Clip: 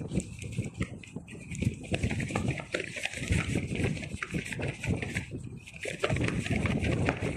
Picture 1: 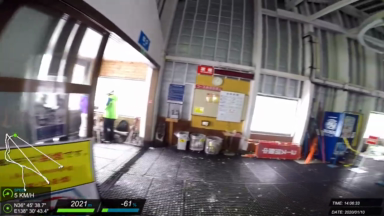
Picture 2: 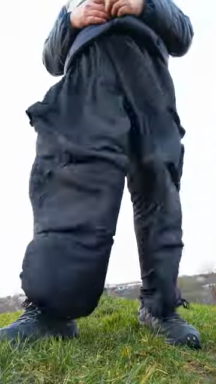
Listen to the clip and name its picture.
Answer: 2